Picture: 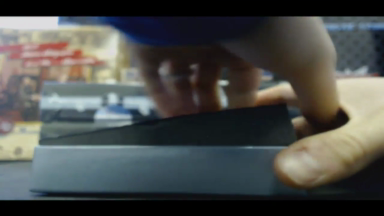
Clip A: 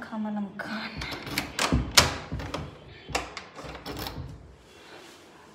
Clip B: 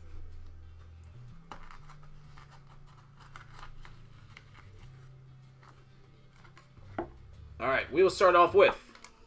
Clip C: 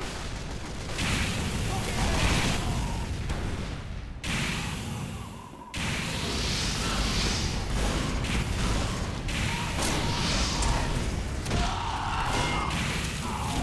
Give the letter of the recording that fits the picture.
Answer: B